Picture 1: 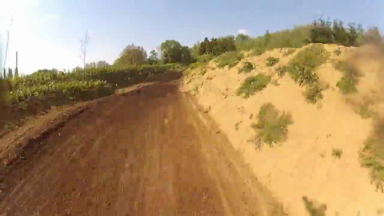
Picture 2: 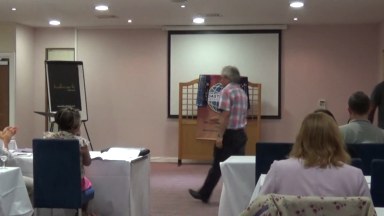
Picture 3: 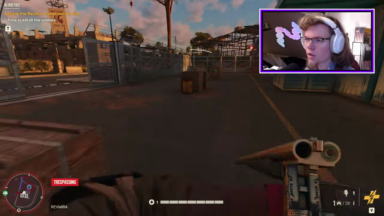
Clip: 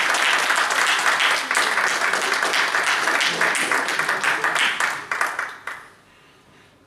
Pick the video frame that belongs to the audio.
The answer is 2